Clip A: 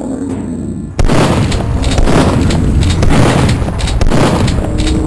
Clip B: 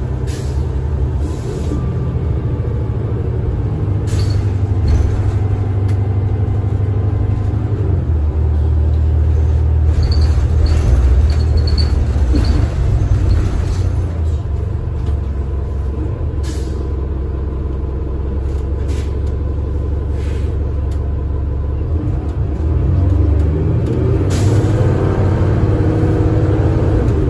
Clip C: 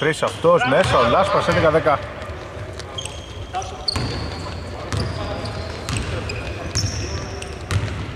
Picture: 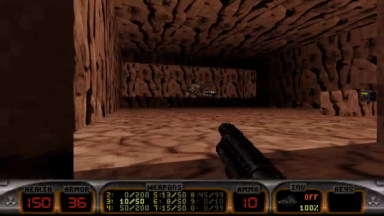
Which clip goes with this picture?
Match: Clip A